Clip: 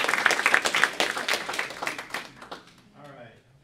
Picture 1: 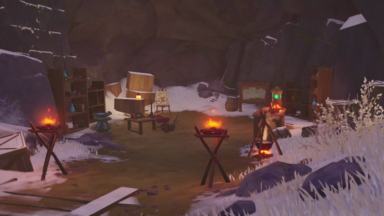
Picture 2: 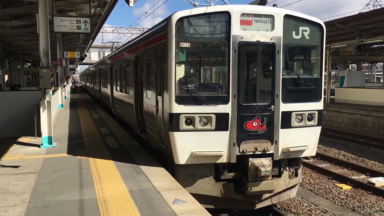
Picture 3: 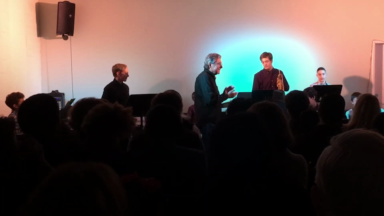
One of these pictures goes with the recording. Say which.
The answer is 3